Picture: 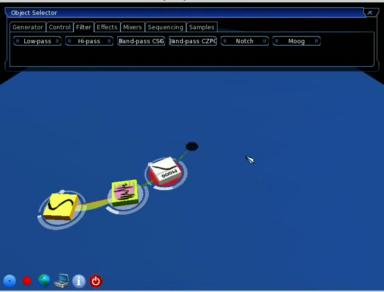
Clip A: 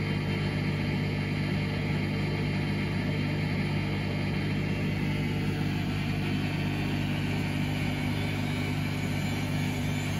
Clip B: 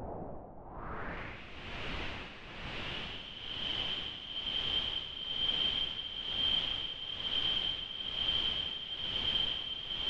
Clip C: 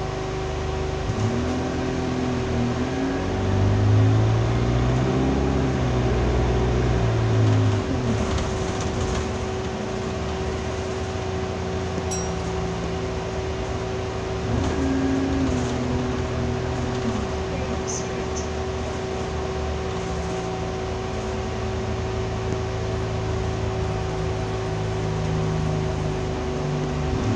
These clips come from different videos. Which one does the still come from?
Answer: B